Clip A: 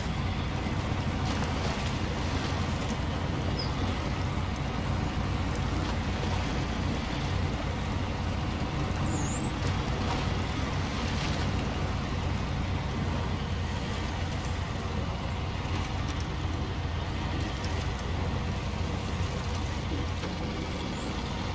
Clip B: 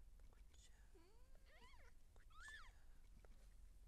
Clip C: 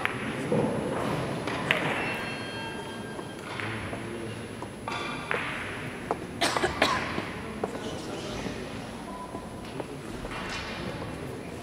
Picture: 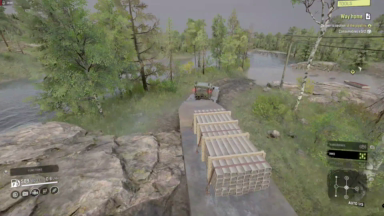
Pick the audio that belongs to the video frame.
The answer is A